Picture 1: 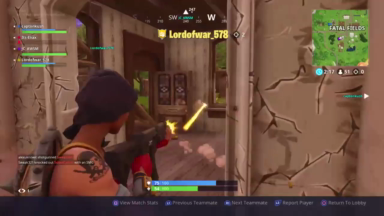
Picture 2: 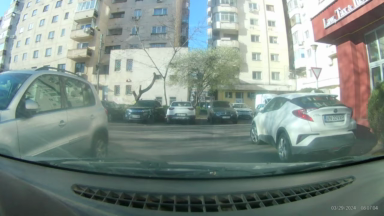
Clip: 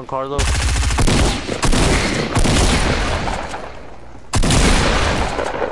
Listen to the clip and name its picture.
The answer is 1